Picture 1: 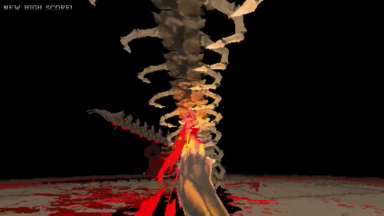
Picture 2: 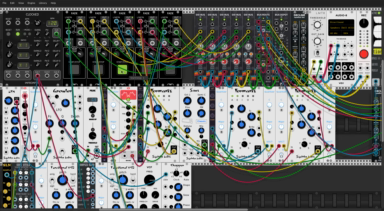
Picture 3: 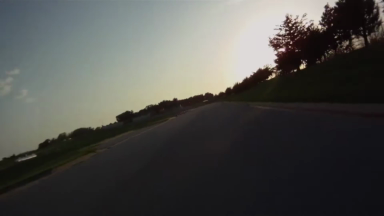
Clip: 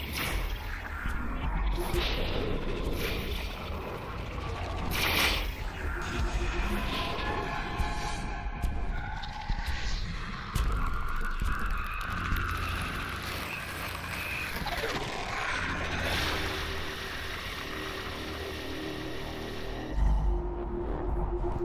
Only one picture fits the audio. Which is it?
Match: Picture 1